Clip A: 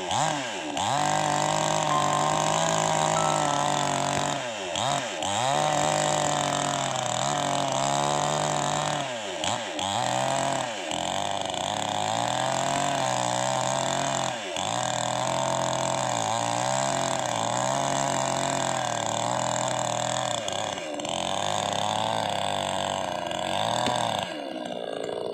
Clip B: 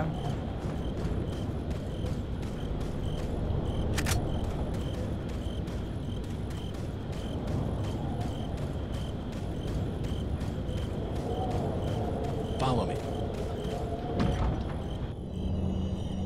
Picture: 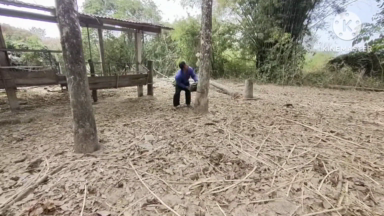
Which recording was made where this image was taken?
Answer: A